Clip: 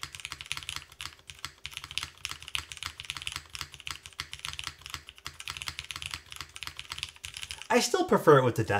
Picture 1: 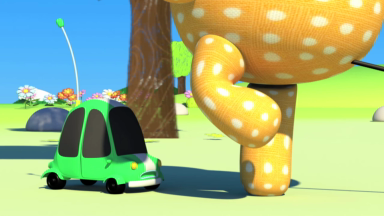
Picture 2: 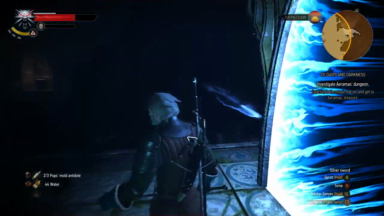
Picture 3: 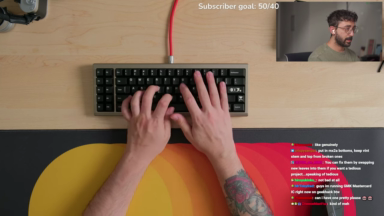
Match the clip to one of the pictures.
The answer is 3